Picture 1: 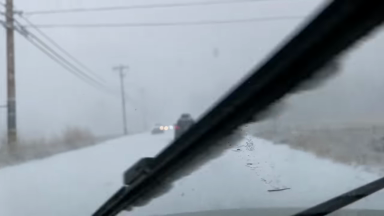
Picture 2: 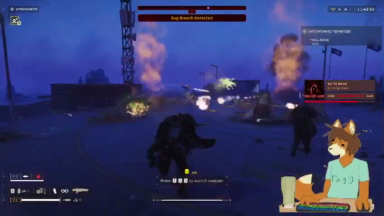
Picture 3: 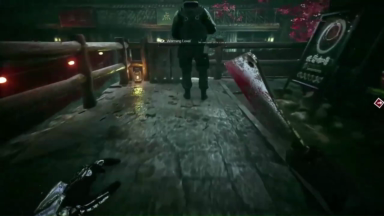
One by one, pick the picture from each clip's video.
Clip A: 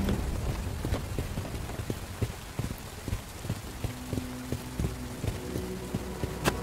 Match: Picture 3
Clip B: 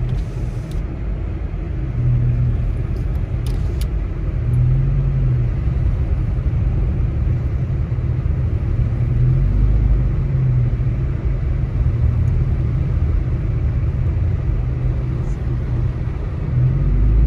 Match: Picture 1